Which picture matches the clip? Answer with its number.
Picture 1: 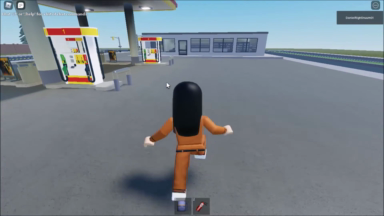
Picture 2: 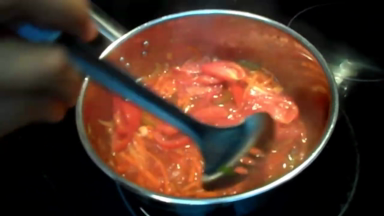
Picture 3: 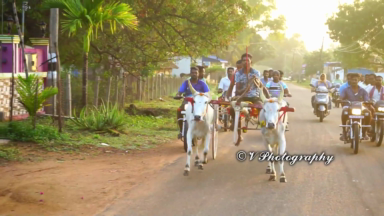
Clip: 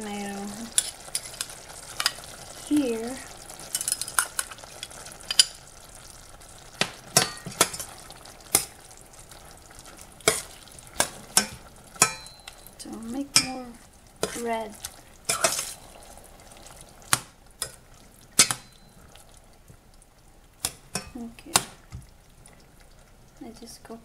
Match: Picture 2